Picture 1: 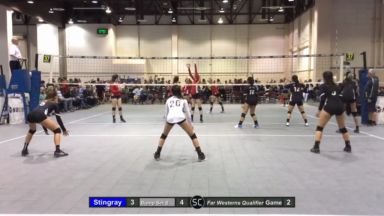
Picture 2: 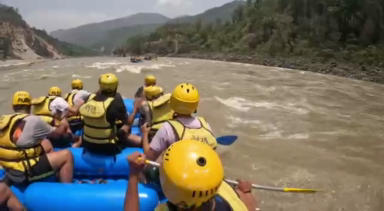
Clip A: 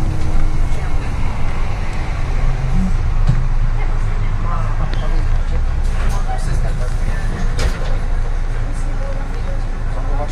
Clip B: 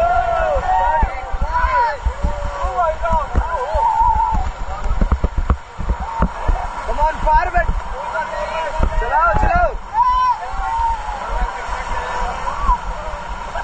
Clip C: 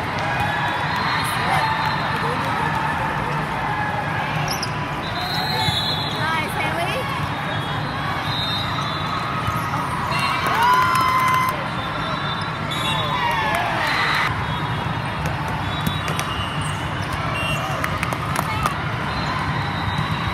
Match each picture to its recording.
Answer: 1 C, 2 B